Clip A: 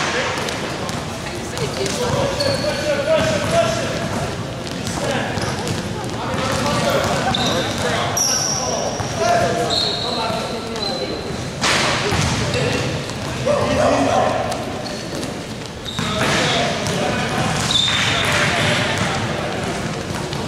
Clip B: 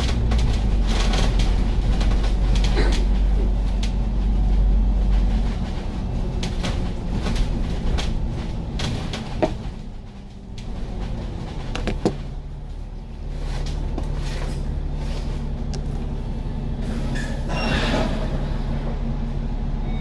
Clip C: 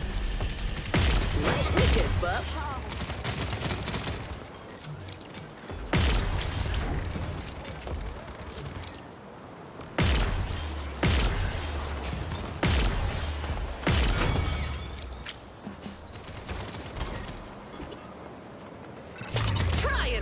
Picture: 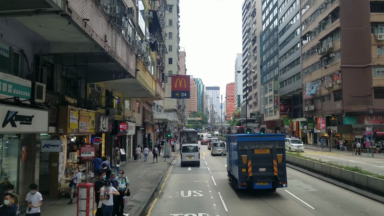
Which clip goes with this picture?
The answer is B